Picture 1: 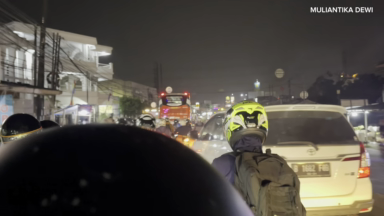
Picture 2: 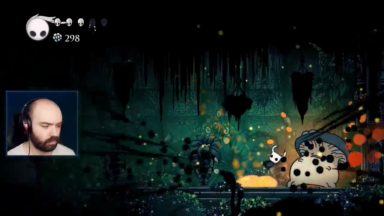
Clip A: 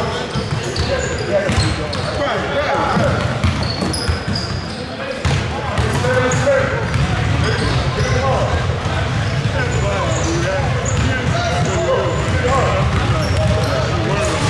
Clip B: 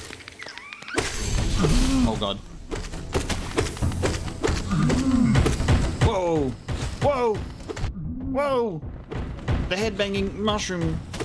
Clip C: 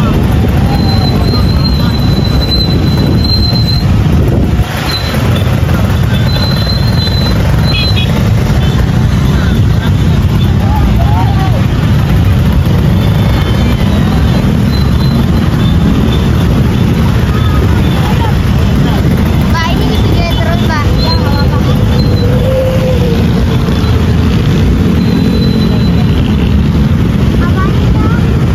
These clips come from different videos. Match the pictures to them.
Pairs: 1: C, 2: B